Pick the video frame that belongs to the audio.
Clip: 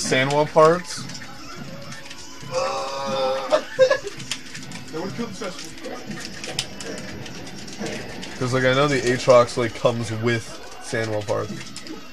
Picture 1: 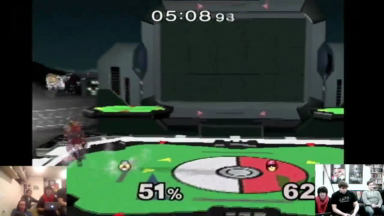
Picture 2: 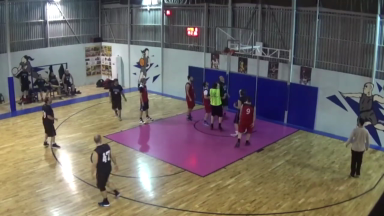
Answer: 1